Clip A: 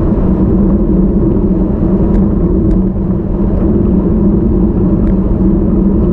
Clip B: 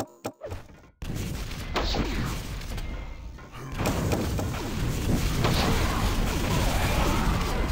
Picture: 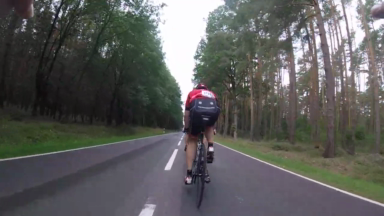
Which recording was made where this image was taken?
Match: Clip A